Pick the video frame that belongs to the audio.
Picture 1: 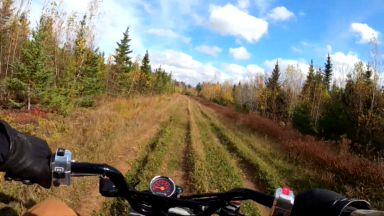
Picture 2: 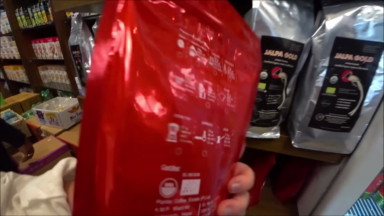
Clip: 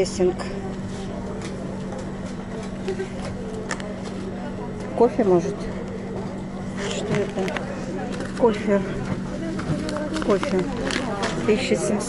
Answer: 2